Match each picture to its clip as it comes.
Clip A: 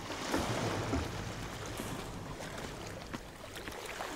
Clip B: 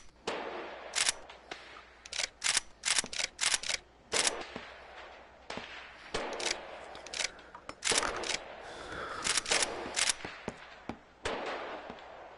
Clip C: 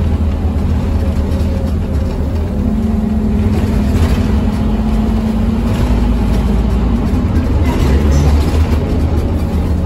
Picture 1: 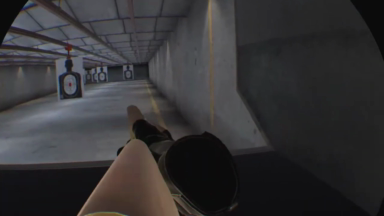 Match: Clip B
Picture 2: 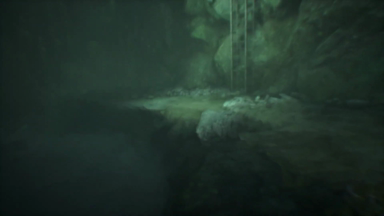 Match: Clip A